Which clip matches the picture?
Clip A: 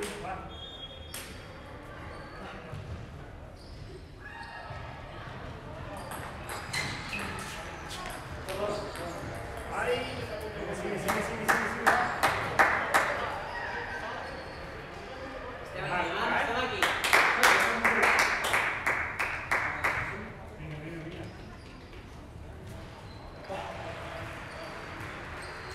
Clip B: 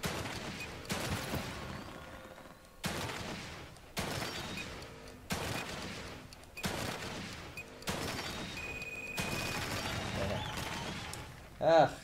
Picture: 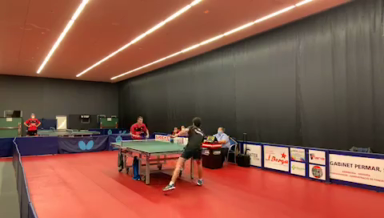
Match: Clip A